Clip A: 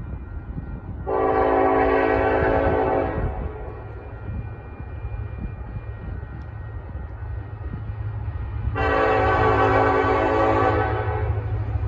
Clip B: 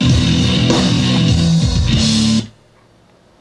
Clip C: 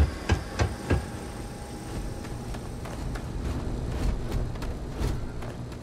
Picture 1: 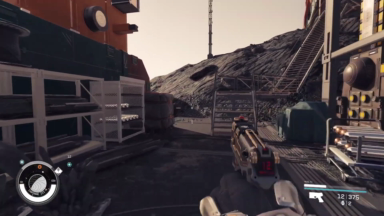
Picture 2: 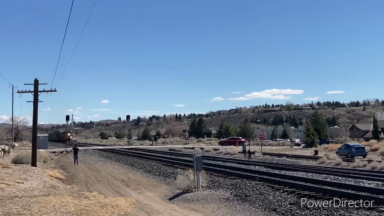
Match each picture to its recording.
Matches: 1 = C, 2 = A